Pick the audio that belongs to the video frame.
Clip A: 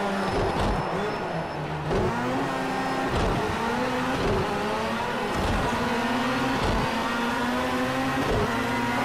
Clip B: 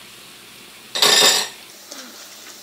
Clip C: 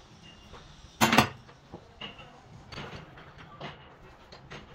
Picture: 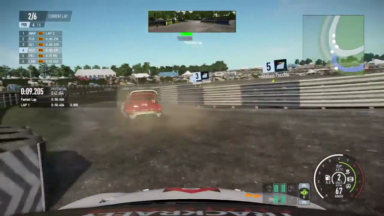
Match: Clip A